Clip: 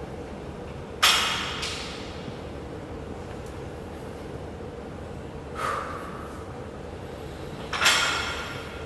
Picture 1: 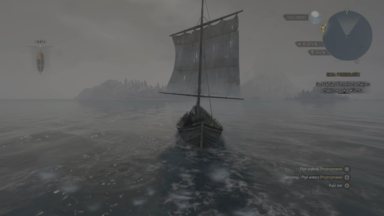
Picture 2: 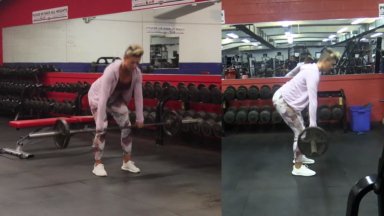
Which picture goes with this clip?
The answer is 2